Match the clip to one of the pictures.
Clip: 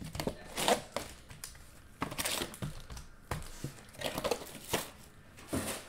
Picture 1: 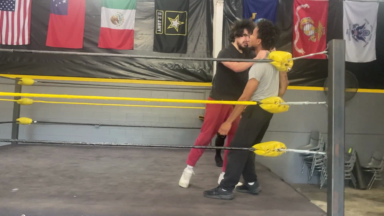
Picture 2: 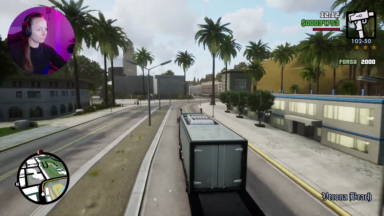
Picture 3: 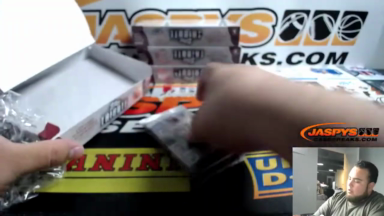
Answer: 3